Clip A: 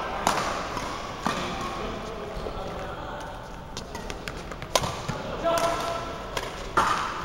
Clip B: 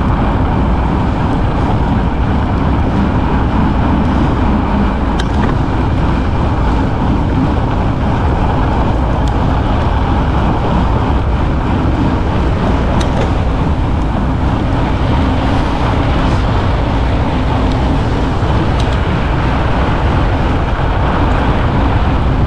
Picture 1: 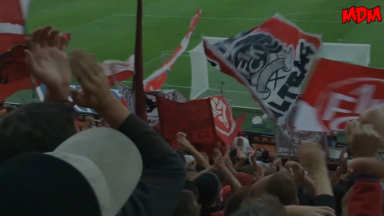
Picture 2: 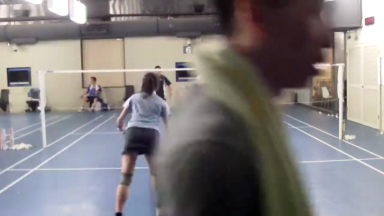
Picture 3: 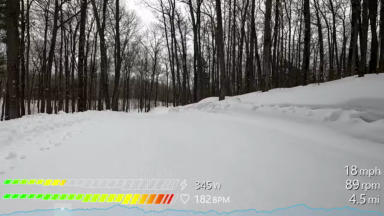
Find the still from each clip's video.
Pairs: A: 2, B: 3